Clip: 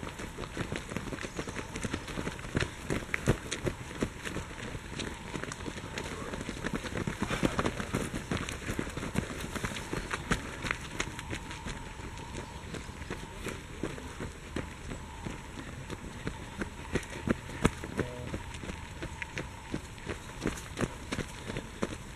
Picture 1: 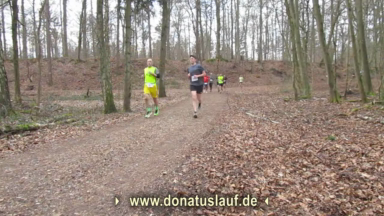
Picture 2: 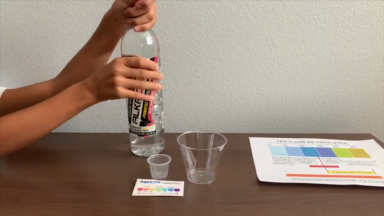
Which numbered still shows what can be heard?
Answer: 1